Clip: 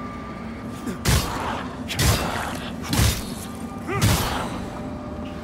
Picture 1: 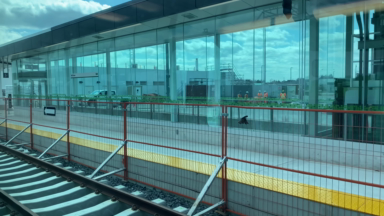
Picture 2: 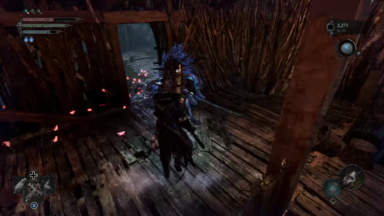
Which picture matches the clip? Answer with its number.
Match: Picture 2